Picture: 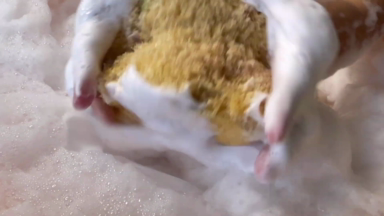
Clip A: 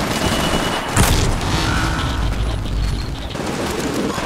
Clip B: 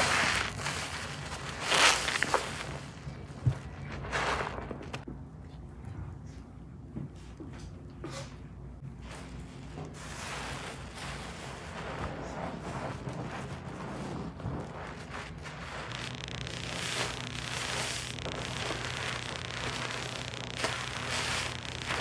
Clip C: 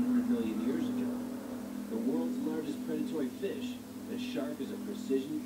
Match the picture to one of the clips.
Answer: B